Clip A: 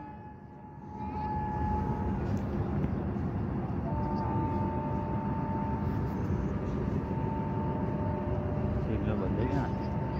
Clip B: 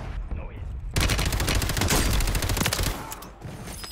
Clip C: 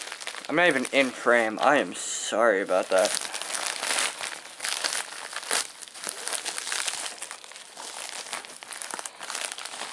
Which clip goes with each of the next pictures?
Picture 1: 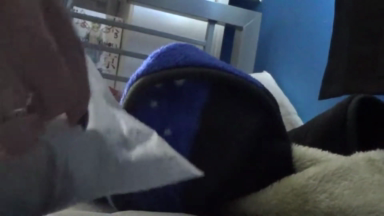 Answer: C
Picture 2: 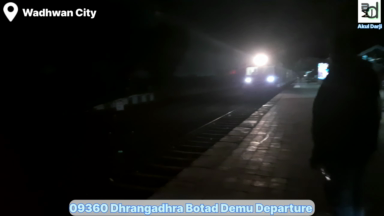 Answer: A